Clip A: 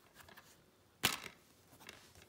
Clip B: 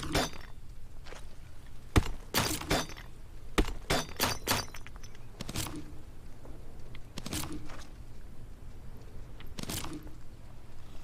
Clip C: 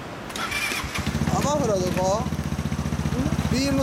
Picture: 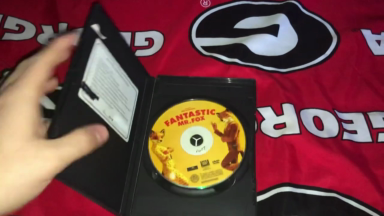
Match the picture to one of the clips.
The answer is A